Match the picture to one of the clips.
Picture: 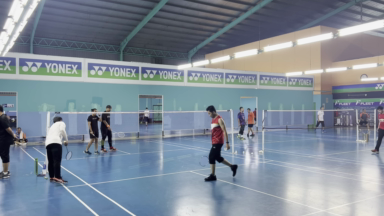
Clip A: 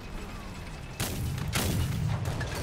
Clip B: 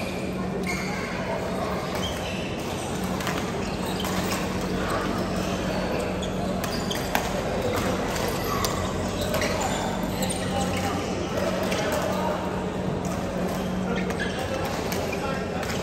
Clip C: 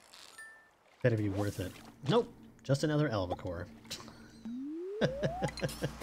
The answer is B